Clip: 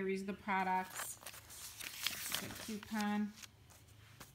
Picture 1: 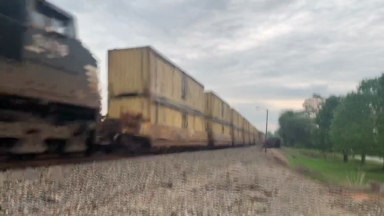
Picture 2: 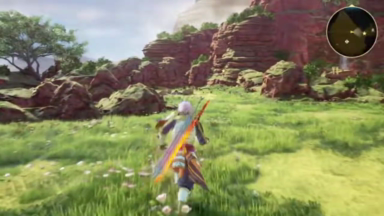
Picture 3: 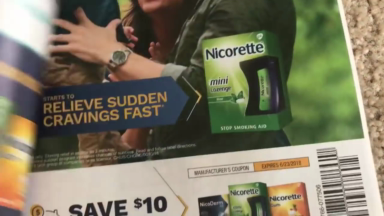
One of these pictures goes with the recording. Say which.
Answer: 3